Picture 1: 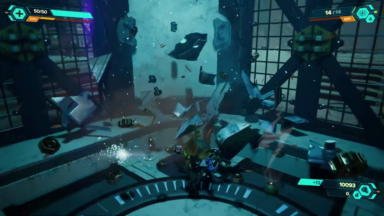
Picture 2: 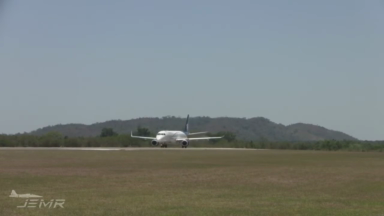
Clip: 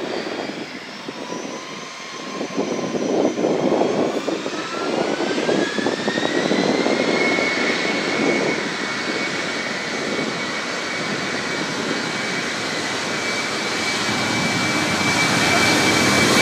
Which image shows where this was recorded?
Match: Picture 2